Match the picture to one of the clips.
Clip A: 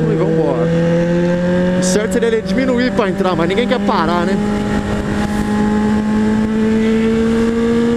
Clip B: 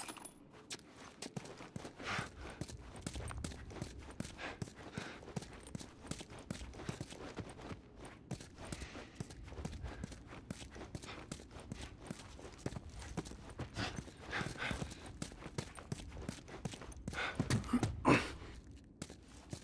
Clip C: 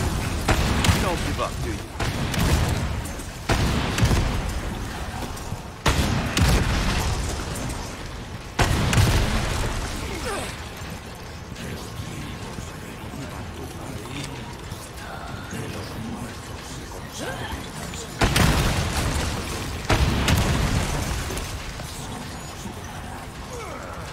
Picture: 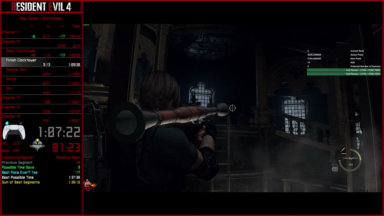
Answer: C